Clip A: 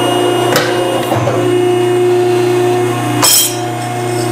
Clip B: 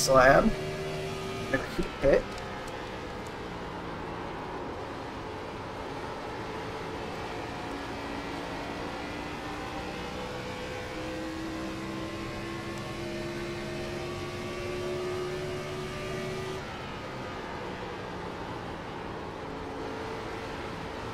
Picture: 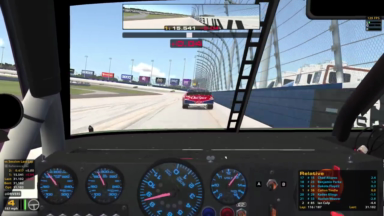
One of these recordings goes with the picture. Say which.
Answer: B